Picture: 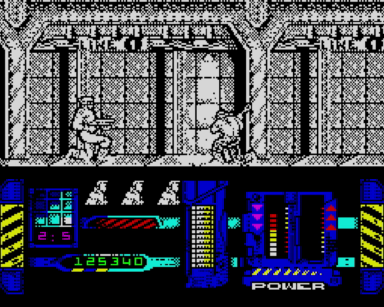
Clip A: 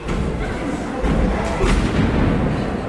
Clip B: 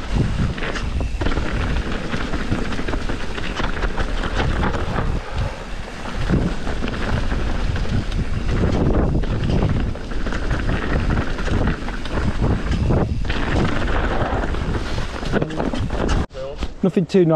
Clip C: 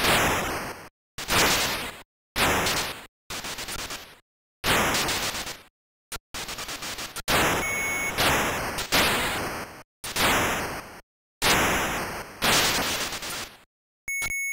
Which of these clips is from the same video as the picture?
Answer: C